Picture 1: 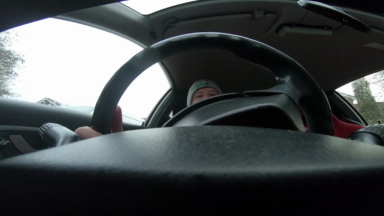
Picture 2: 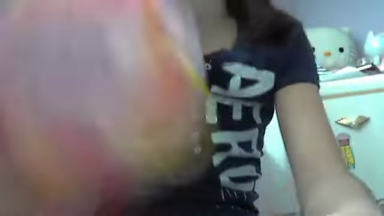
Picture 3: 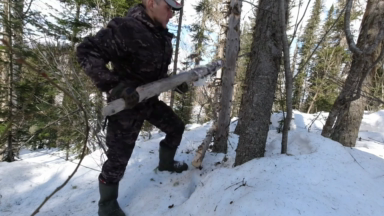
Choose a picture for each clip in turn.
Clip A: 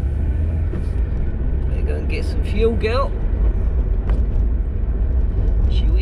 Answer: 1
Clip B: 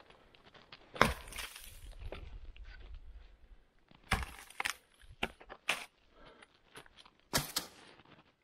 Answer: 3